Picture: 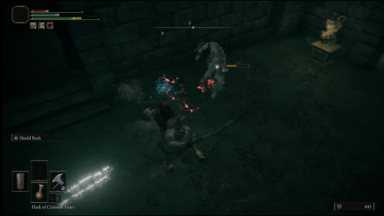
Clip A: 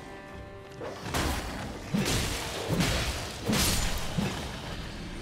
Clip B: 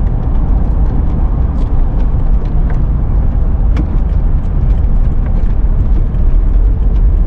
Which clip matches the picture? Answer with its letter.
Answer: A